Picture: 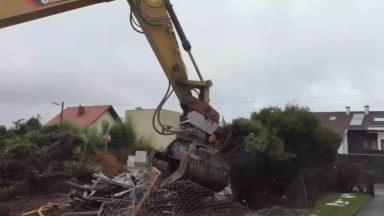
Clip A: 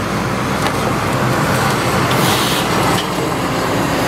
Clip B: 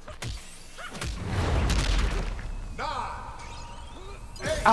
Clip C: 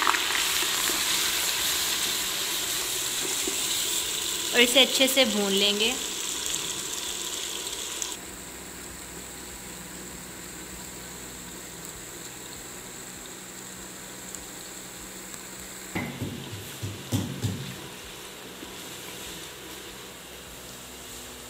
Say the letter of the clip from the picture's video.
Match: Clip A